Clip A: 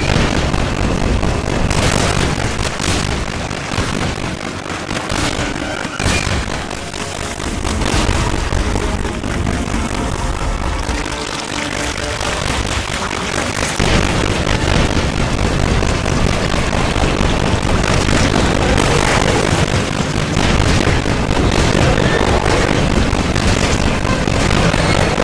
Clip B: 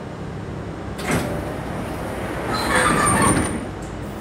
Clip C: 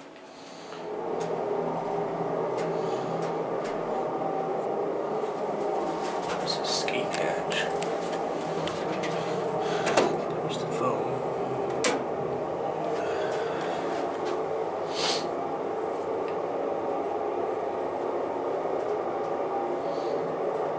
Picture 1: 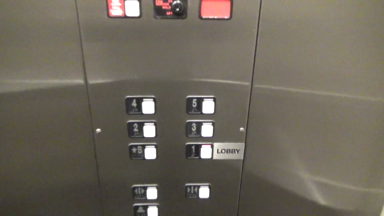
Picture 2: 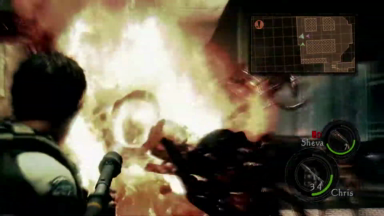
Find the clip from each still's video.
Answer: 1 C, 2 A